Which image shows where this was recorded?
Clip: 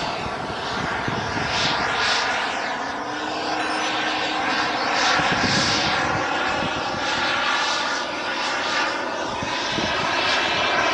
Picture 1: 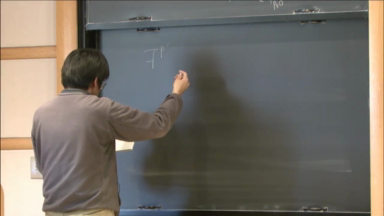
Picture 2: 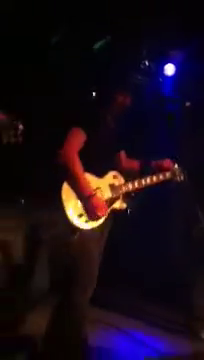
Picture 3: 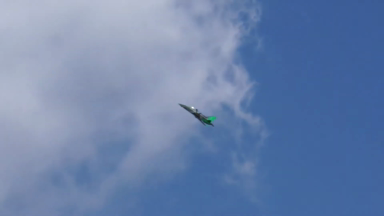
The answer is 3